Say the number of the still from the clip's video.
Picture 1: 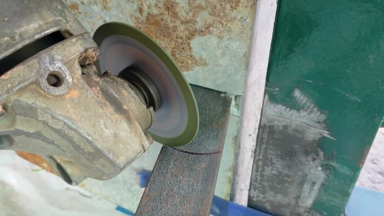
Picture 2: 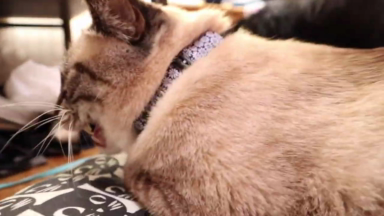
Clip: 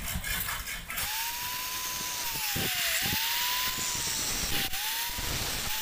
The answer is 1